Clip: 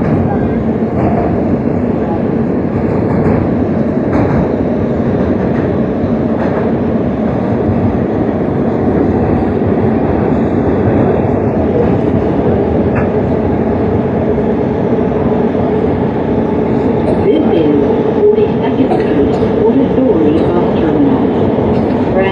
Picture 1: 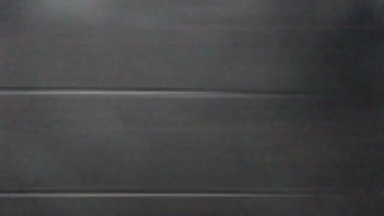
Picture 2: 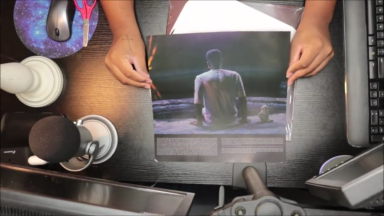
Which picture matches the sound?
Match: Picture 1